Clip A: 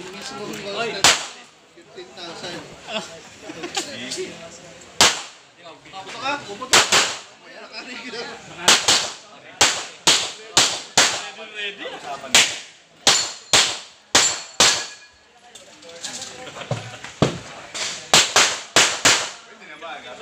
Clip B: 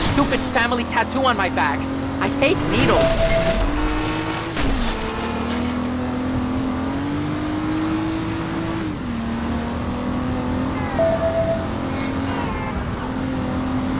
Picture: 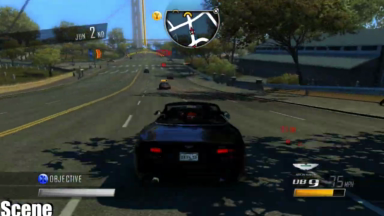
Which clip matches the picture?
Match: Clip B